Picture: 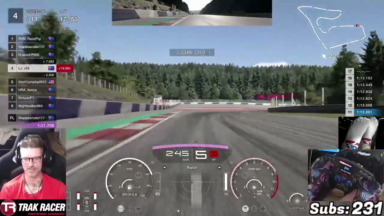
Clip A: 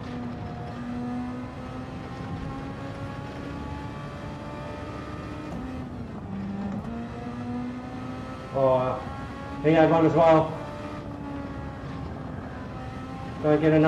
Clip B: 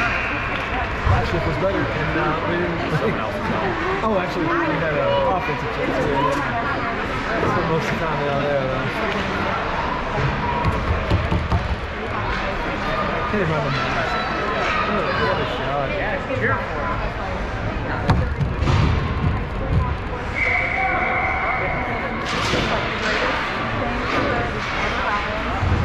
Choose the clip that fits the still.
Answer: A